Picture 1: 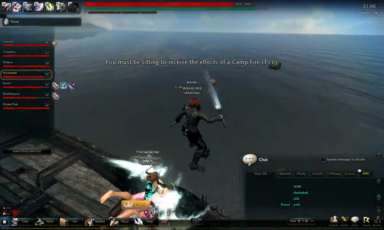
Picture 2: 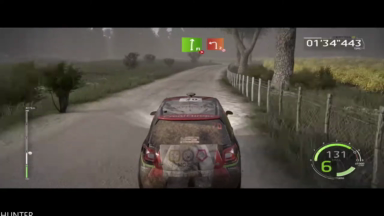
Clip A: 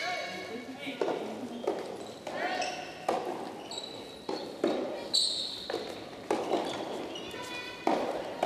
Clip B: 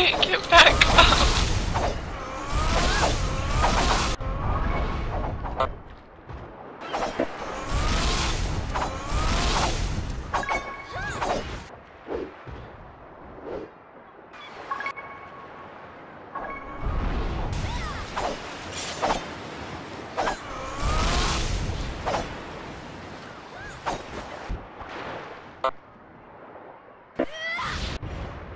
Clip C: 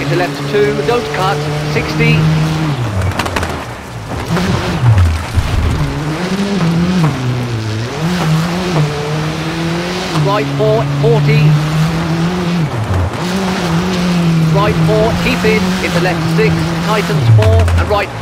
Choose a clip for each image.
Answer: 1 B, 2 C